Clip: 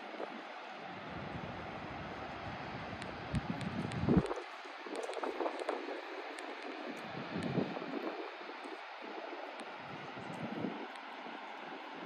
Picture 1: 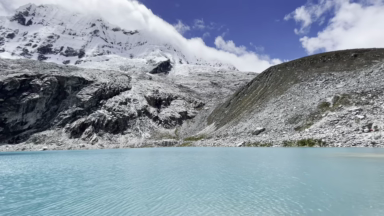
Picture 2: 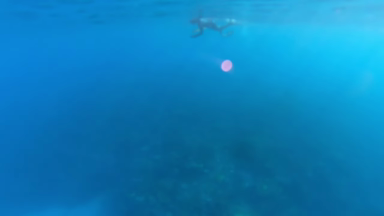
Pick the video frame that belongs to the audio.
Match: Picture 1